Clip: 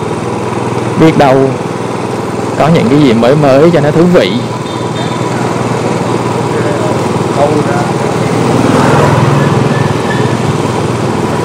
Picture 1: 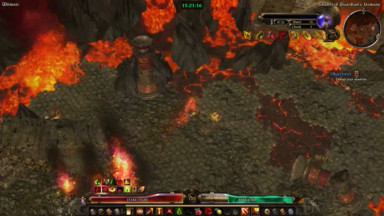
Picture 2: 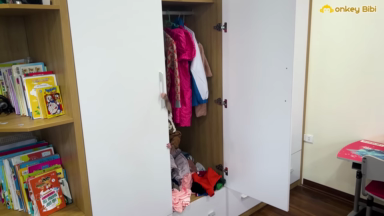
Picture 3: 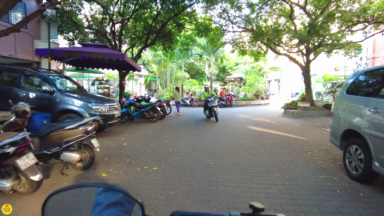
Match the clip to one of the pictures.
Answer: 3